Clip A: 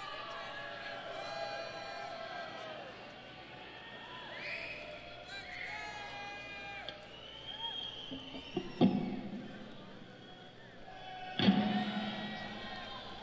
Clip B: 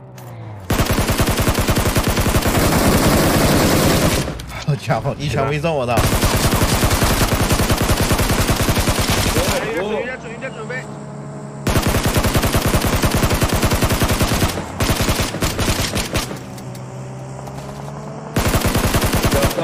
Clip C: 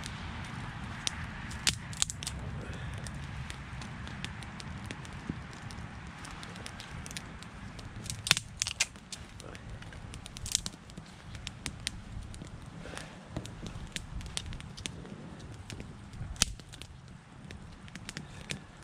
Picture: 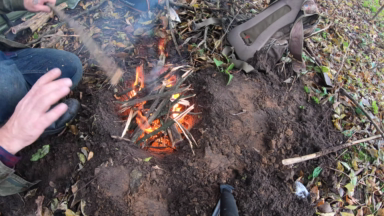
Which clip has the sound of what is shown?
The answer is C